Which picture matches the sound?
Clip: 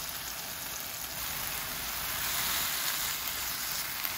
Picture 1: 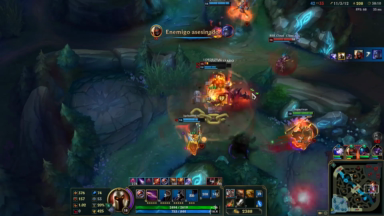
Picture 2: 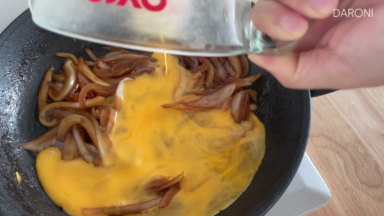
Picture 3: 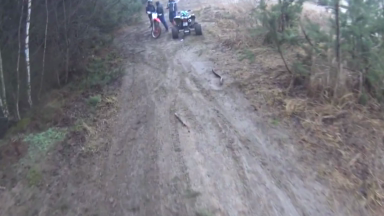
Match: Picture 2